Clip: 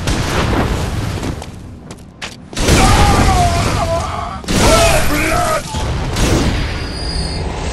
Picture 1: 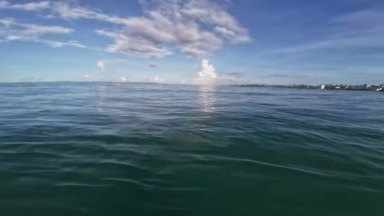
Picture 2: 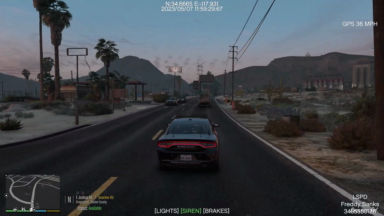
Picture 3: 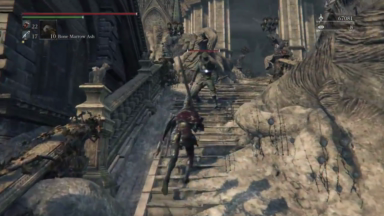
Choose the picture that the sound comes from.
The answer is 3